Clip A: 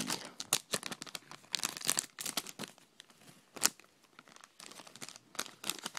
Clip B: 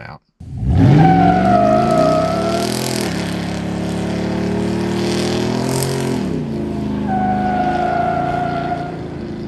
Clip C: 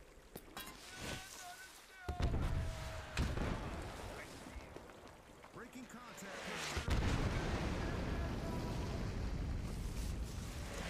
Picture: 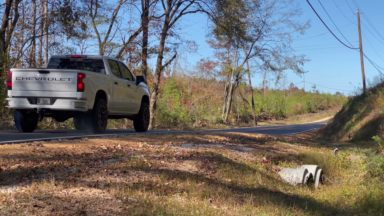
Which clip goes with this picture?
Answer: B